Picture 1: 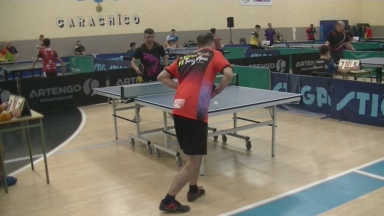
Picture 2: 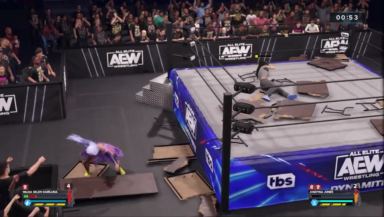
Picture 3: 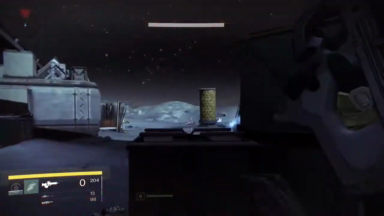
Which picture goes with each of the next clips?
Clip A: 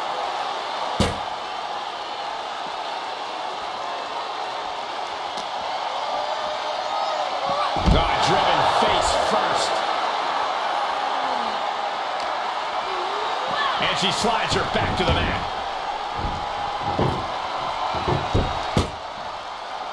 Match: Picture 2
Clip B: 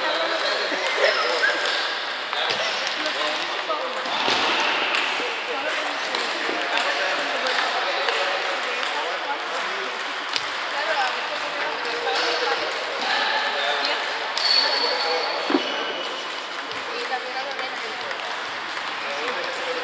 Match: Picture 1